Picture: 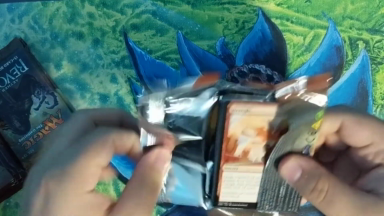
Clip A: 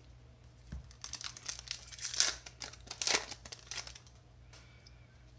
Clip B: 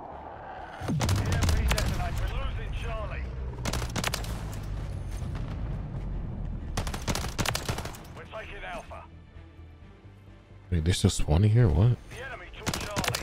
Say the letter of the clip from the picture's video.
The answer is A